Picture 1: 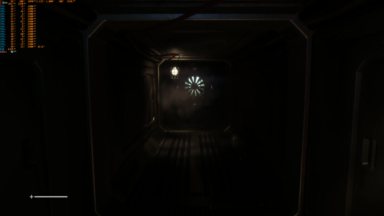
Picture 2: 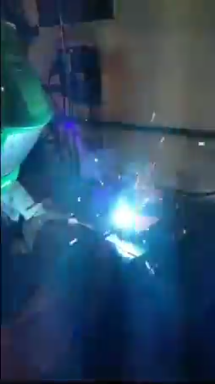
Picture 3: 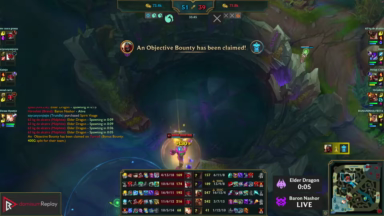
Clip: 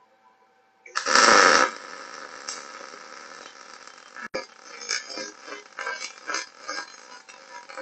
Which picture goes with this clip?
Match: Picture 2